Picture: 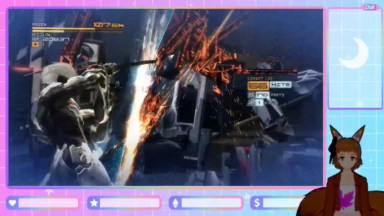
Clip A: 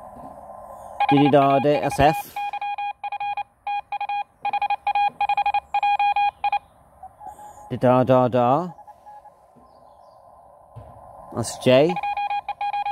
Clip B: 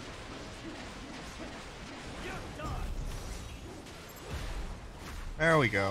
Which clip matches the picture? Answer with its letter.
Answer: B